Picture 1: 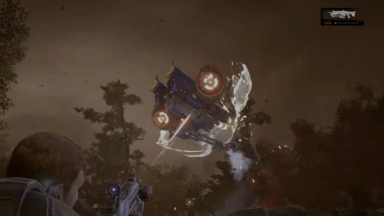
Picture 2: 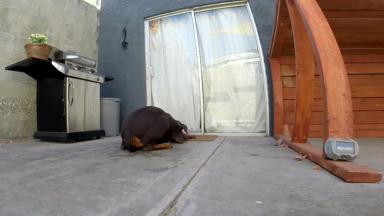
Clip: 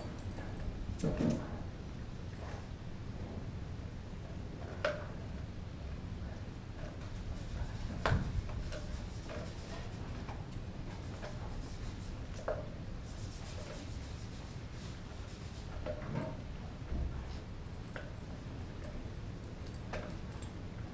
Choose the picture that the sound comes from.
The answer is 2